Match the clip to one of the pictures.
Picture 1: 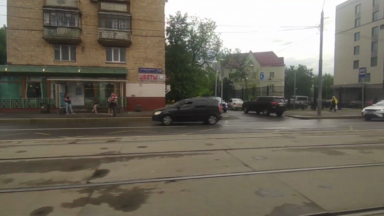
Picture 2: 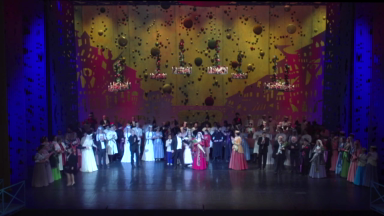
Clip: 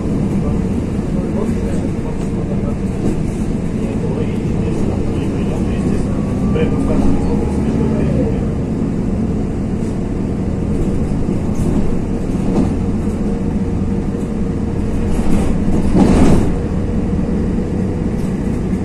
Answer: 1